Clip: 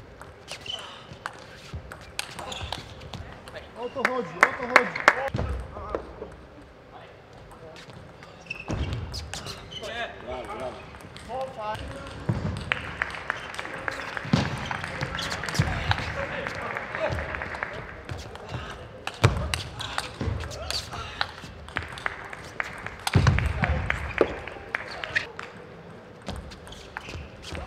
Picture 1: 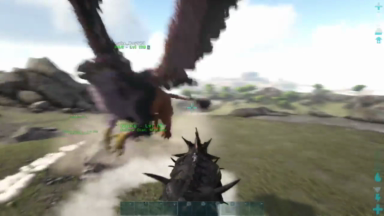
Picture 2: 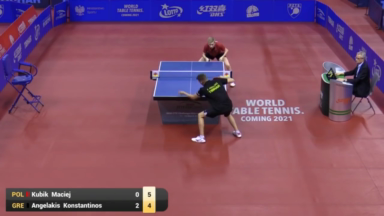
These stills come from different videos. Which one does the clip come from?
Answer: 2